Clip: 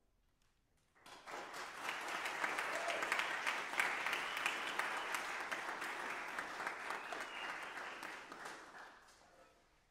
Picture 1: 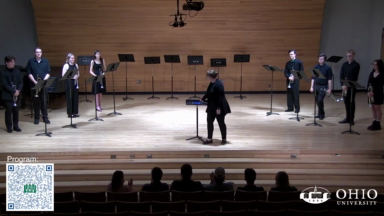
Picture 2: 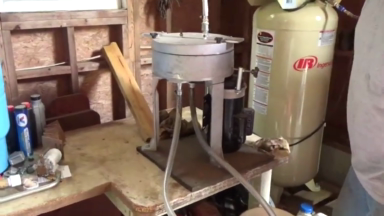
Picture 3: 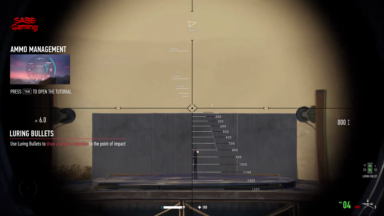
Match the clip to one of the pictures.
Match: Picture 1